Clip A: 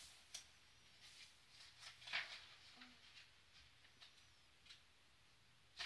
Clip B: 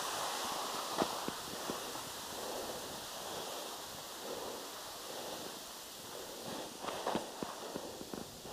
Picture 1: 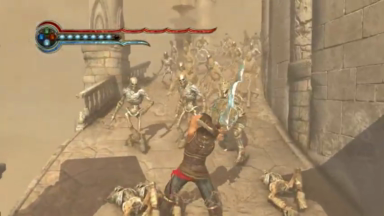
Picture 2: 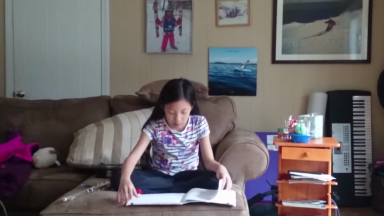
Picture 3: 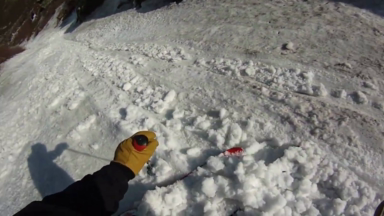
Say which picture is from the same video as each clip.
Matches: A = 2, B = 3